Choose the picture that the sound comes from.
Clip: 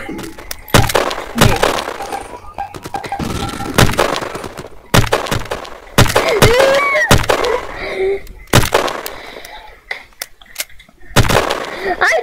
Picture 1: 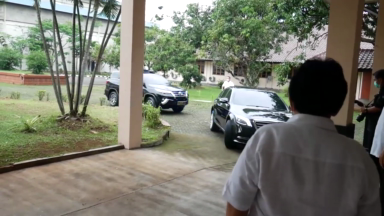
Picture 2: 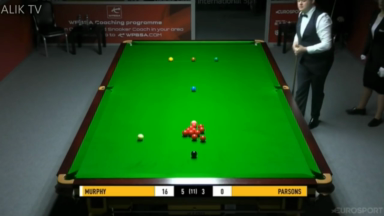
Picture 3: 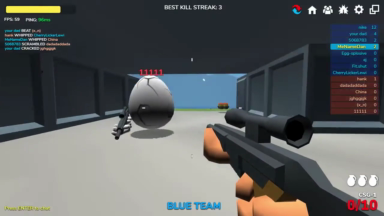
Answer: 3